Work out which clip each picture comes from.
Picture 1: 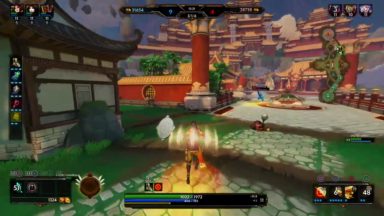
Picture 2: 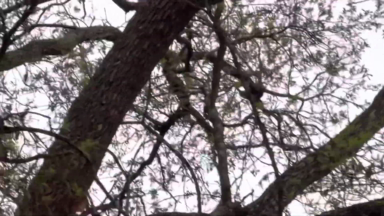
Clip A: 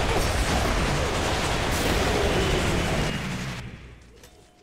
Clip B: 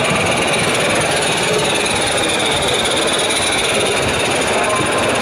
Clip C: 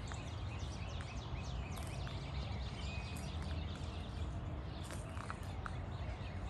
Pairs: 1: A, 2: C